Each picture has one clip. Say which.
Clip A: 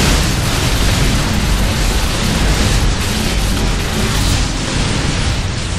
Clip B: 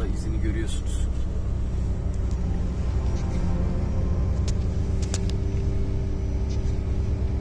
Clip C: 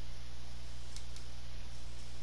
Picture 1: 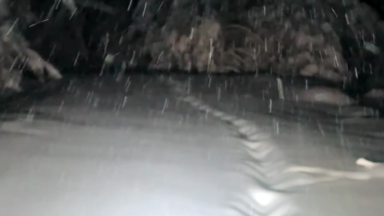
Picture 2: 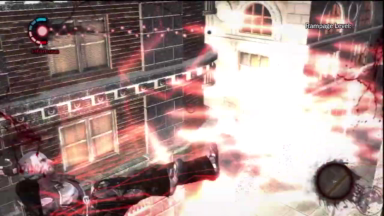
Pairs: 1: B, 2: A